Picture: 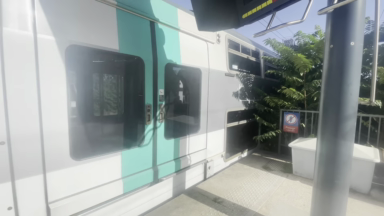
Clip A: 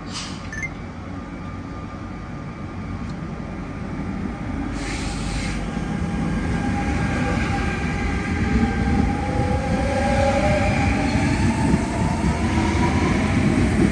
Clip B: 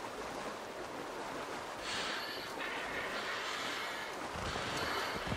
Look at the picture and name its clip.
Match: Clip A